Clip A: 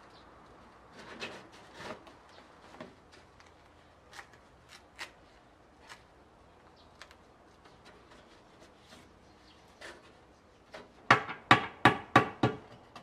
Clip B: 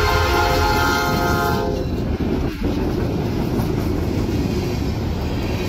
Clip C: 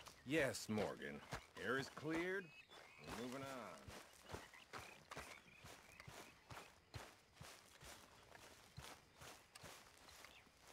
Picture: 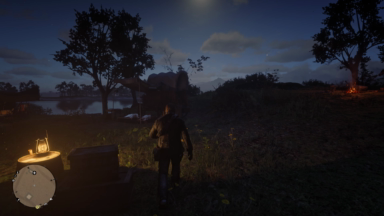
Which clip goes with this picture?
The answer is C